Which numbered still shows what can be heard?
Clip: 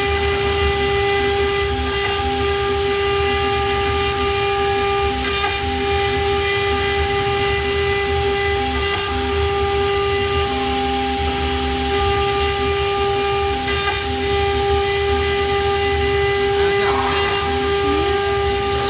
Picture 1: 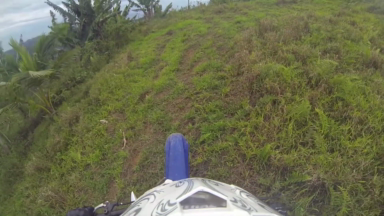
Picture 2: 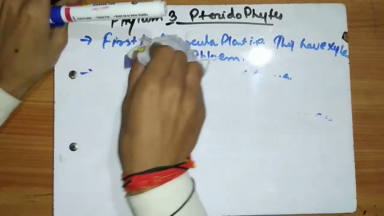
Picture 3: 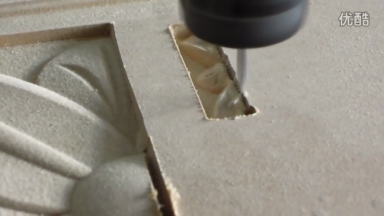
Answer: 3